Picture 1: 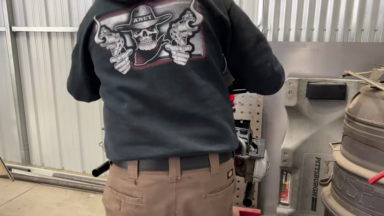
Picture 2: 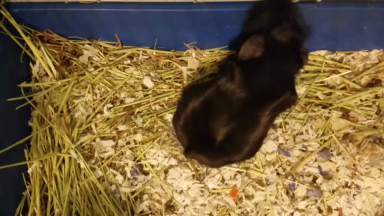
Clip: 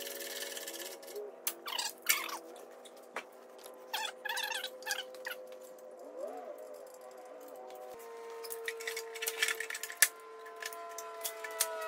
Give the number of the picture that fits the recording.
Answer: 1